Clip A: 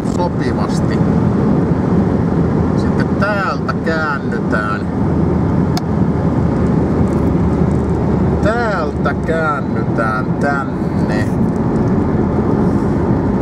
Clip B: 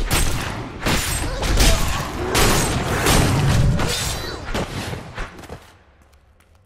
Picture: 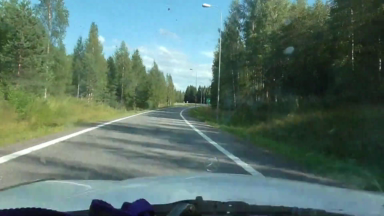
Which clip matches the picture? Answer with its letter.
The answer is A